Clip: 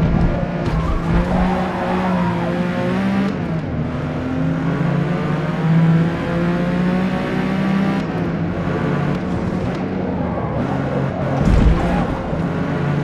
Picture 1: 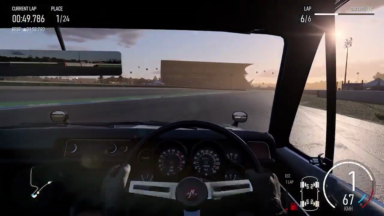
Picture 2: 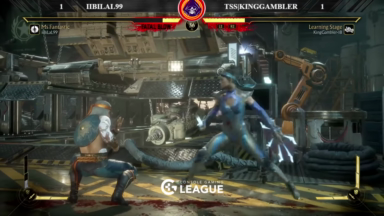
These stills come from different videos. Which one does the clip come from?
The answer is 1